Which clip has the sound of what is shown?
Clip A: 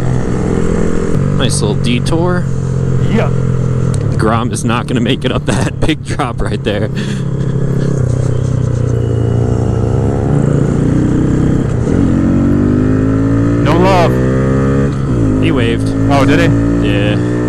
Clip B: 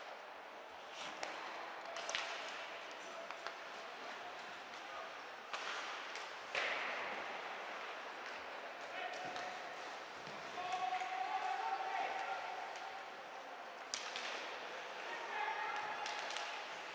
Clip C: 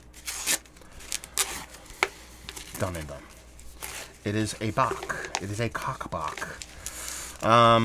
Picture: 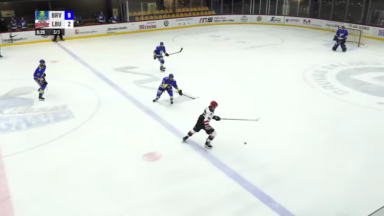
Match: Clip B